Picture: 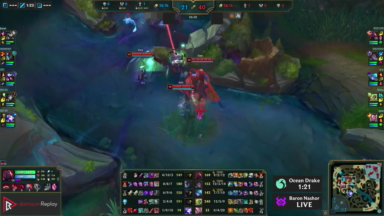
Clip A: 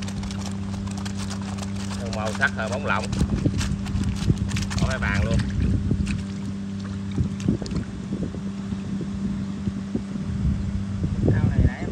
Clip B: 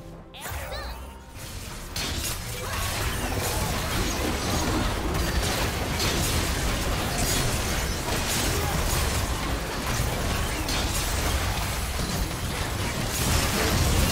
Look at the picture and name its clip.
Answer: B